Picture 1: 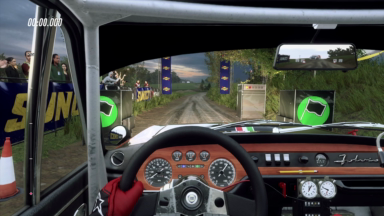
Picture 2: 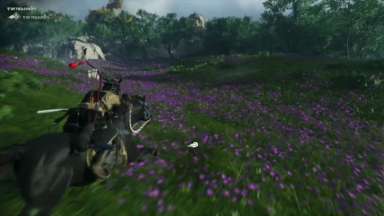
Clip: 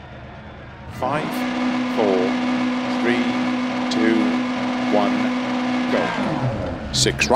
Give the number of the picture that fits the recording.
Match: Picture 1